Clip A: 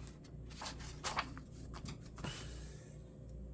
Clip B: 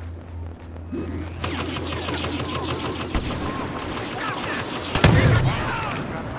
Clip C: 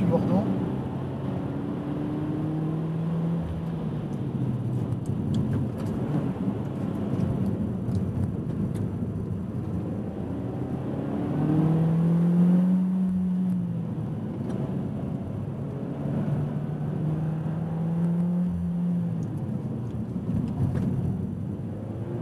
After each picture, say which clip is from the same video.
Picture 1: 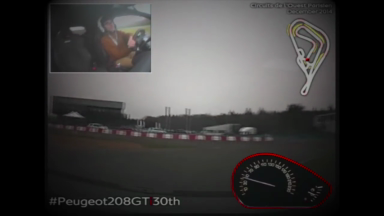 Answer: C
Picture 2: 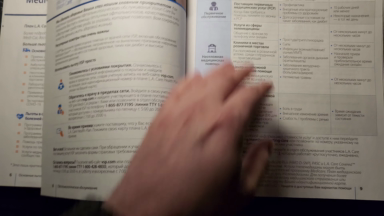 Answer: A